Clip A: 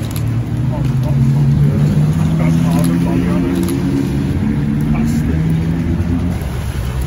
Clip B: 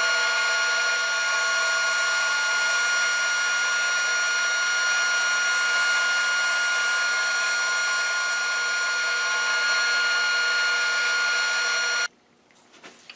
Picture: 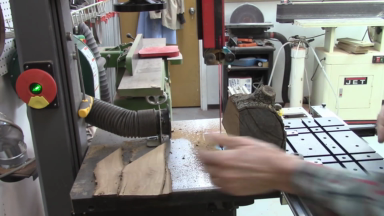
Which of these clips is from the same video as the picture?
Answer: B